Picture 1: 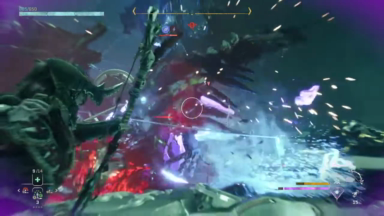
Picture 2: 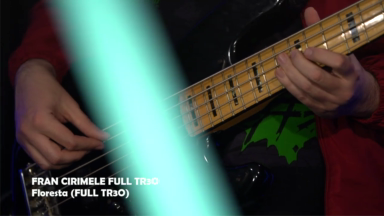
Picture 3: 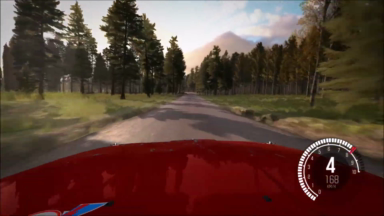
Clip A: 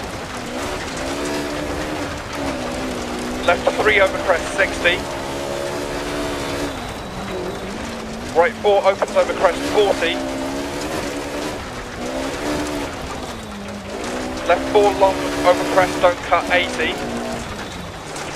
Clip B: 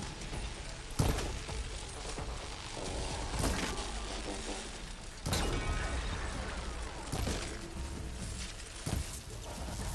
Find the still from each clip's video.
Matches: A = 3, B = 1